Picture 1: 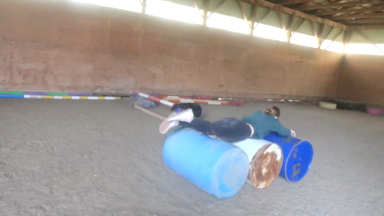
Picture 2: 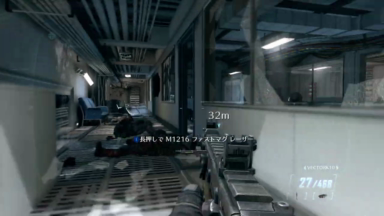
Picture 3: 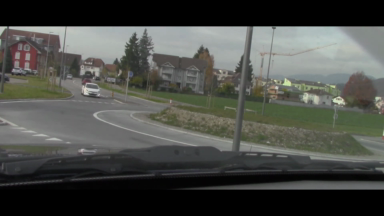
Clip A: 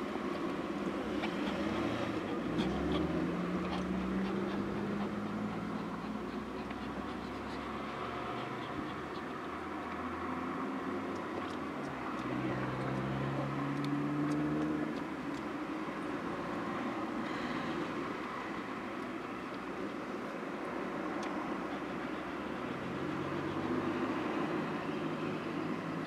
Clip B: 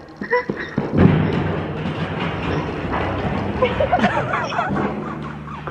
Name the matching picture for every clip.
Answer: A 3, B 1